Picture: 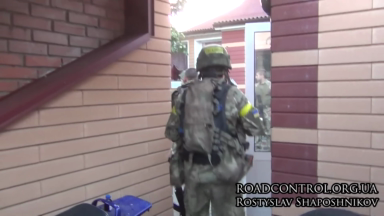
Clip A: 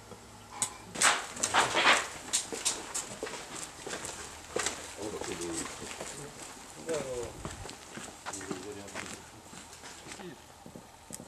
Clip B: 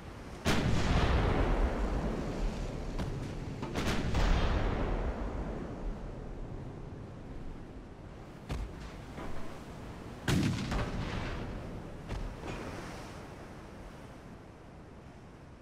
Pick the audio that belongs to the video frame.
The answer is A